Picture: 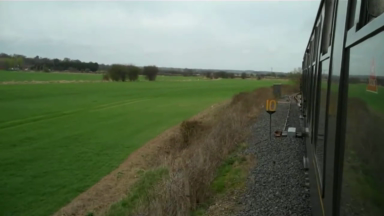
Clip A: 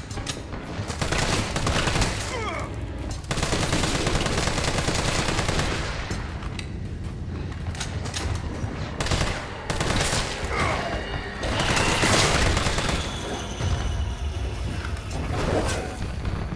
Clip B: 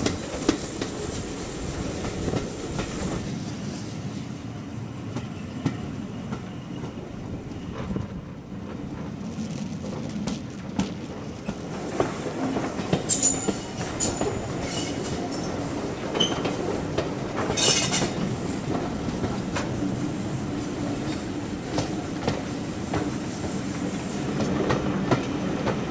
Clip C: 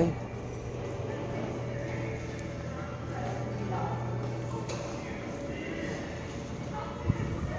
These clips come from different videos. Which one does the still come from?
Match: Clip B